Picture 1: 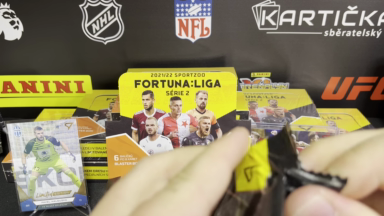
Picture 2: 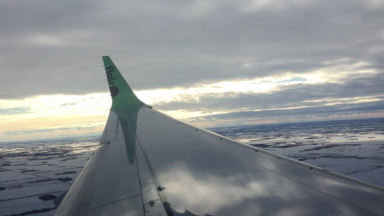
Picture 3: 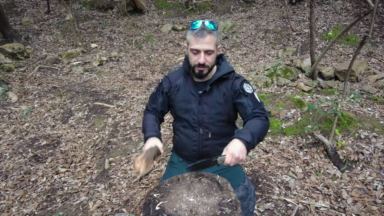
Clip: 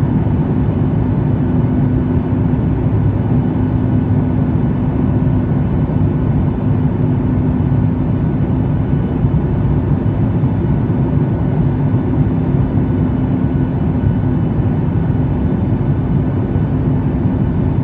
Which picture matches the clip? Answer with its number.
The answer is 2